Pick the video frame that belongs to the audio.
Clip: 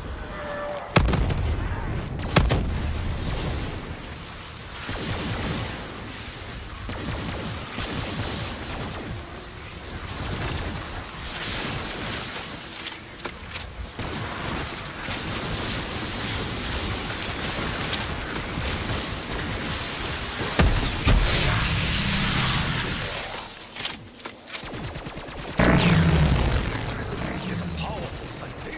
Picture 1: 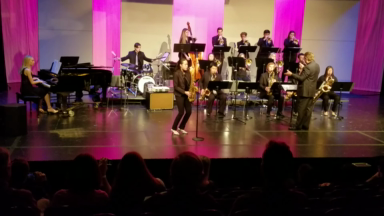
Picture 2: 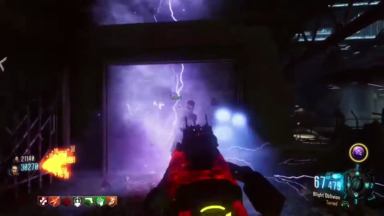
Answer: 2